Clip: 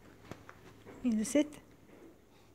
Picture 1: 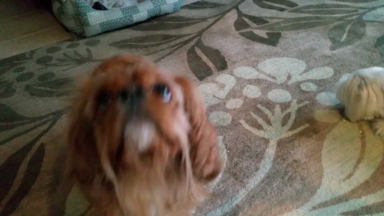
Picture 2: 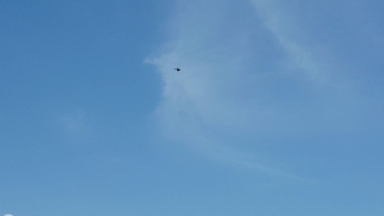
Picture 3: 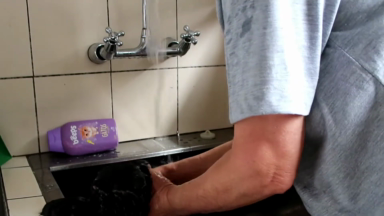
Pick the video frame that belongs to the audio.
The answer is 1